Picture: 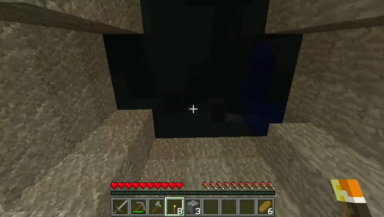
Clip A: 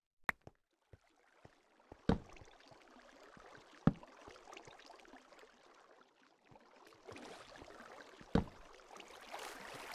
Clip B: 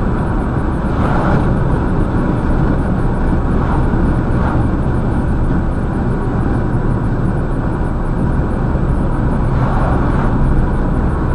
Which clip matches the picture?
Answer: A